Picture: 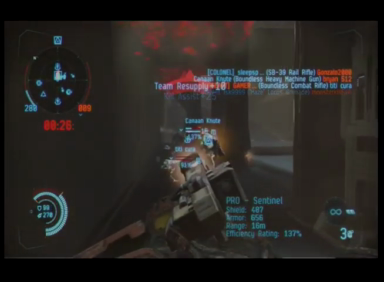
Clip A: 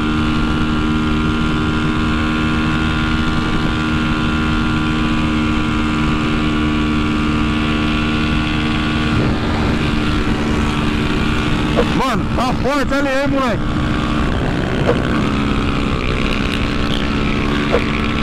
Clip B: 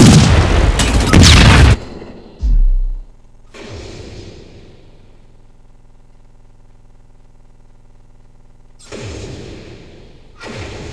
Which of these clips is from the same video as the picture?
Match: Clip B